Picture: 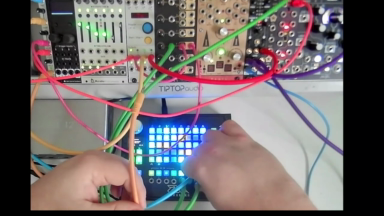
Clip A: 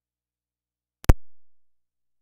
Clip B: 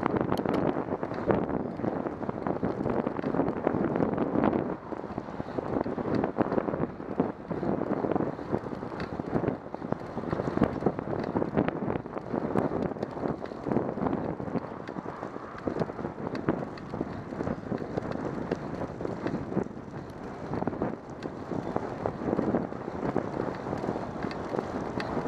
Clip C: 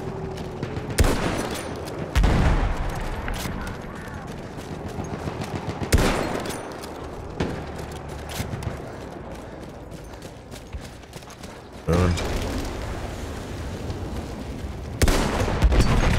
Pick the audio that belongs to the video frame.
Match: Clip A